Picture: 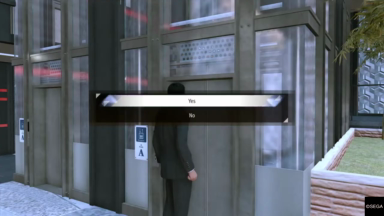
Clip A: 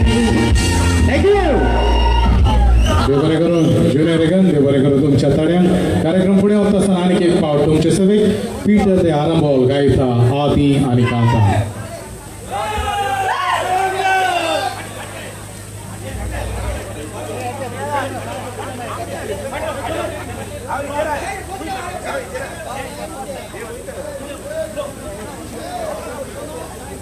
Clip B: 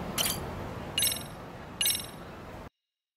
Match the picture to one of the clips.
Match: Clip B